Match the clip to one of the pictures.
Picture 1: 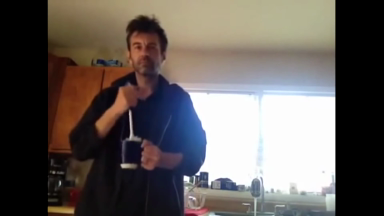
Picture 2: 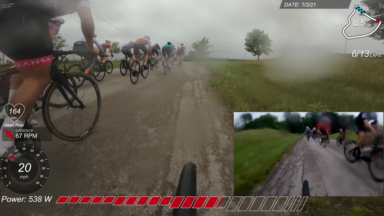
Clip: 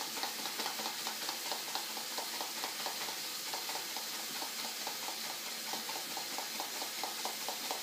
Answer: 1